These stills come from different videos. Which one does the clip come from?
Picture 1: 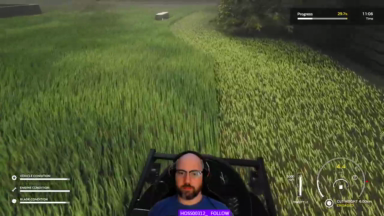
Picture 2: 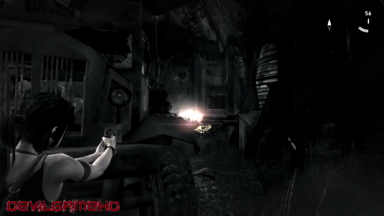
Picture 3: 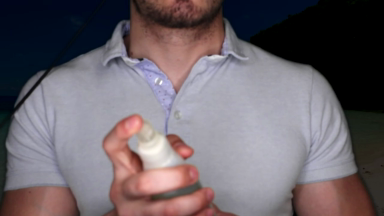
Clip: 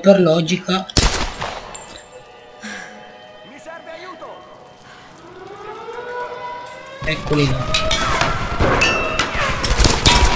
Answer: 2